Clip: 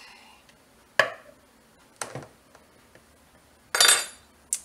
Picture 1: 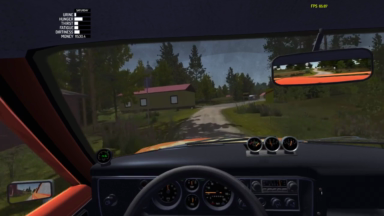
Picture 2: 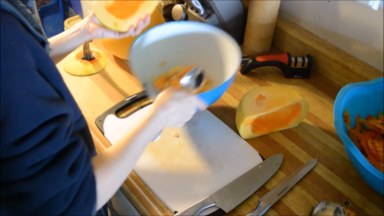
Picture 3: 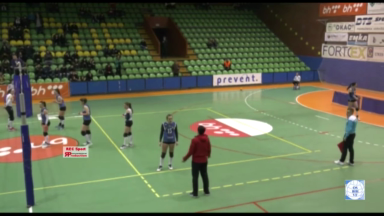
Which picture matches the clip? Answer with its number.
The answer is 2